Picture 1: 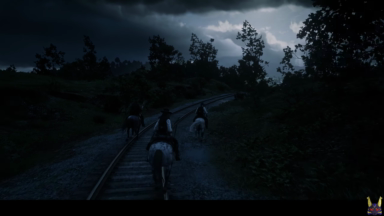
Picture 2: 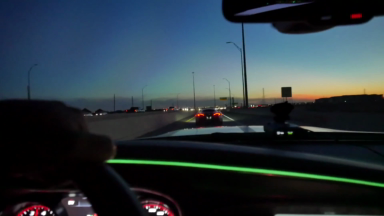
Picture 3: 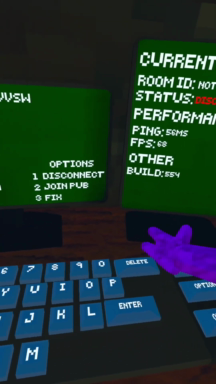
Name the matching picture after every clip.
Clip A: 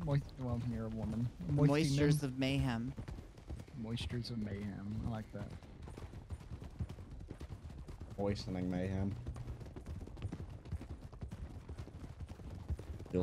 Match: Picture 1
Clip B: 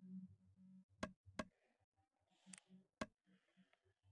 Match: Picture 3